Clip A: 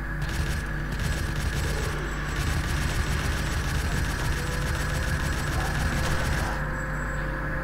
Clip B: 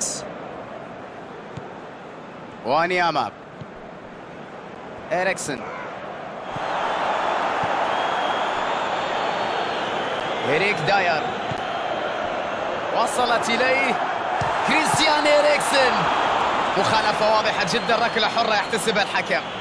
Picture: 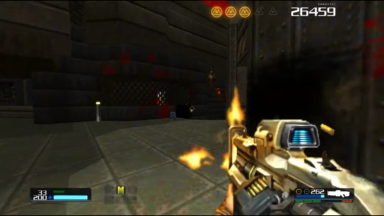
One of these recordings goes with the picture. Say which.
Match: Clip A